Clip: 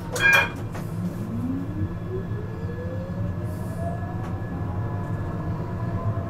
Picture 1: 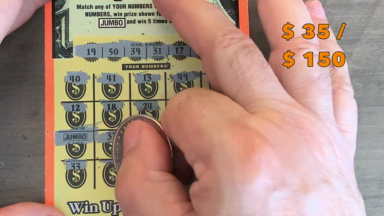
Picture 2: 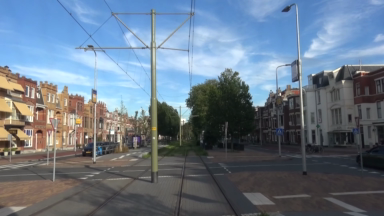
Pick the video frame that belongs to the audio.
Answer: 2